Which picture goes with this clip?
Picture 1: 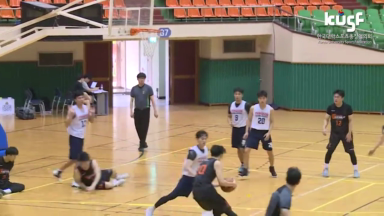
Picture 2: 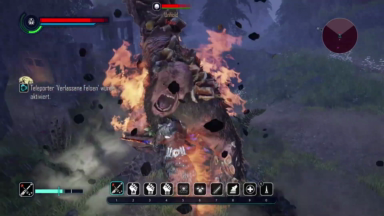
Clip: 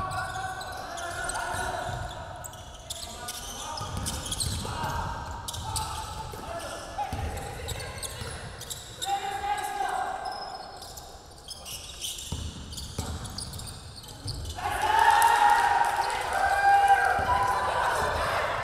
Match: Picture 1